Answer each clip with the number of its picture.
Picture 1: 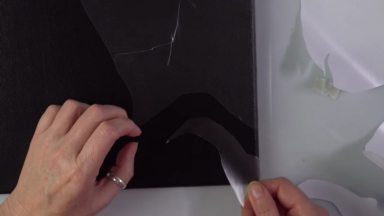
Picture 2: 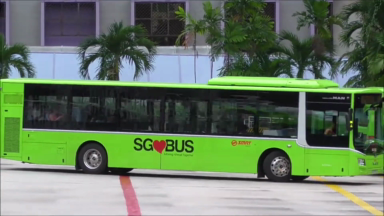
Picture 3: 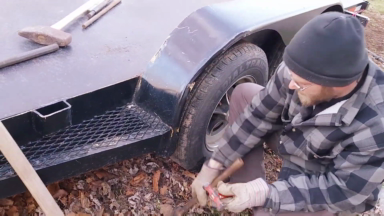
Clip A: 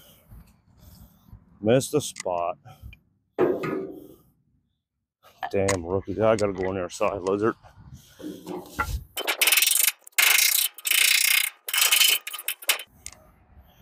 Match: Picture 3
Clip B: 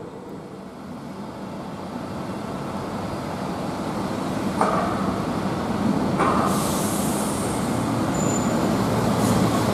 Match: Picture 2